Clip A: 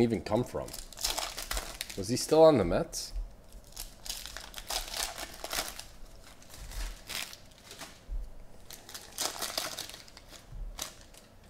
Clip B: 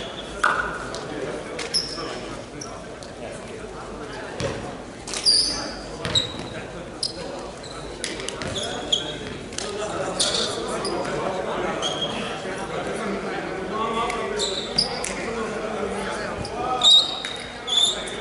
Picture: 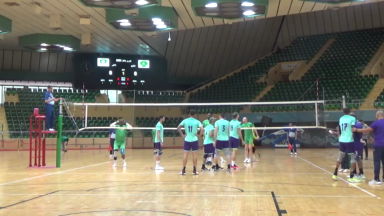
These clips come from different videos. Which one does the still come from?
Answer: B